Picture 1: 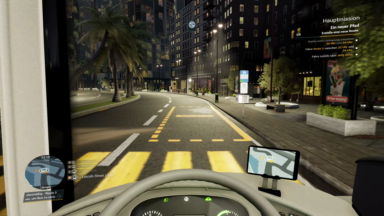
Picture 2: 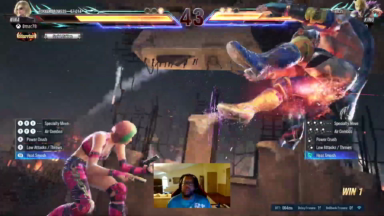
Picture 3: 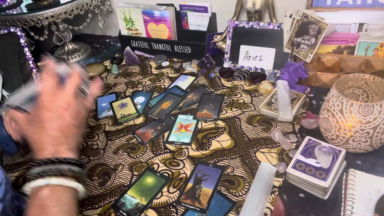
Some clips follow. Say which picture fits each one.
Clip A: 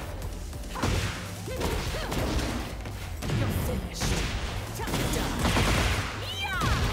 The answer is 2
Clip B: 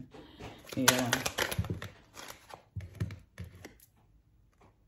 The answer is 3